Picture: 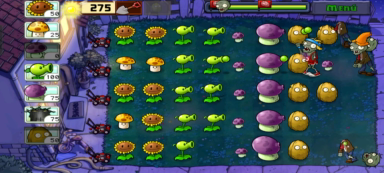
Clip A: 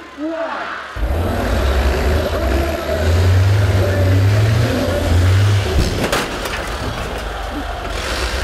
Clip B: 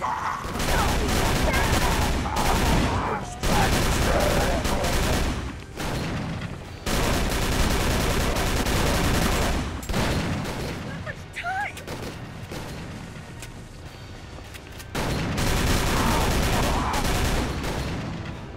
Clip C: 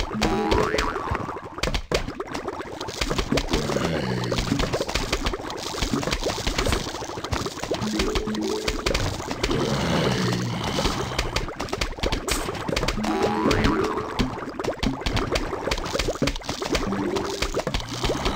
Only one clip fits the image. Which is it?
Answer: C